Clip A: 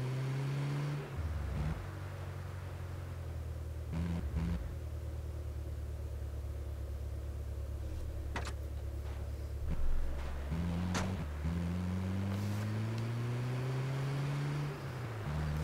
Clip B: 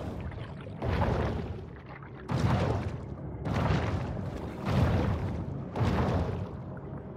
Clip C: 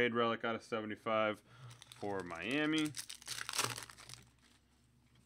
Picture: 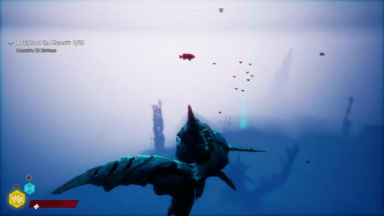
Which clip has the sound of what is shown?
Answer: B